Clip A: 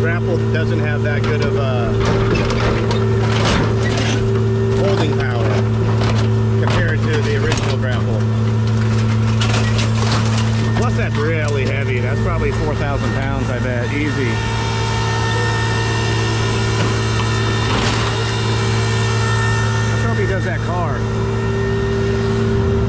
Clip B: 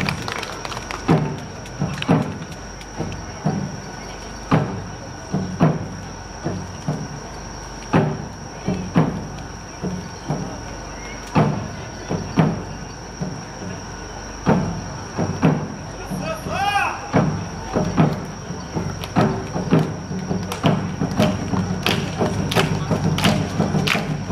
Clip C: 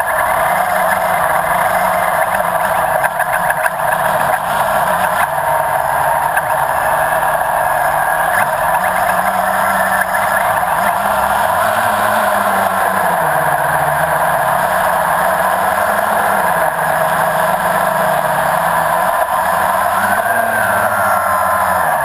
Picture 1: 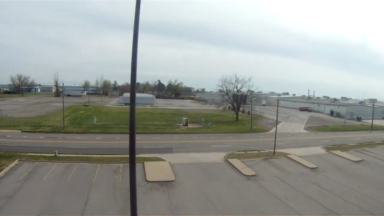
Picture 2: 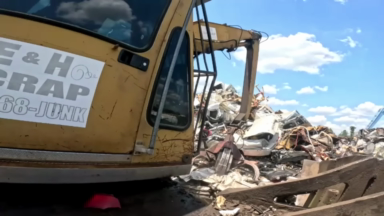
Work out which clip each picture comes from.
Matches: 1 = C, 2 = A